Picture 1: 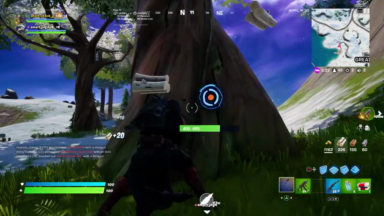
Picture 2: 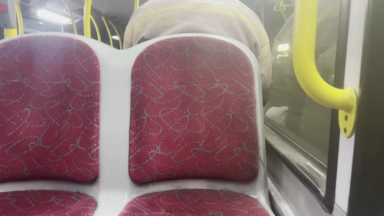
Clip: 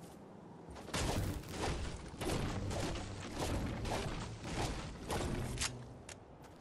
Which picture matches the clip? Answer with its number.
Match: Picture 1